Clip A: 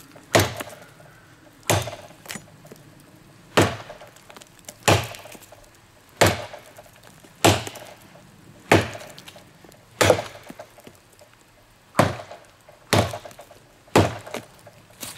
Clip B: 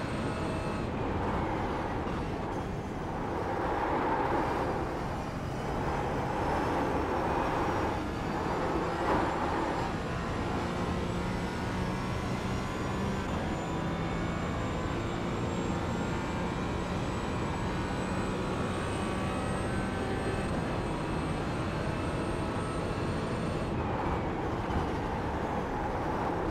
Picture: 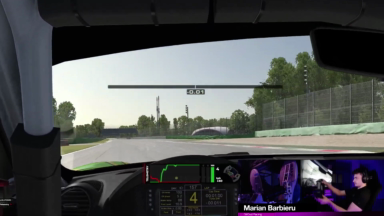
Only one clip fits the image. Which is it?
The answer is B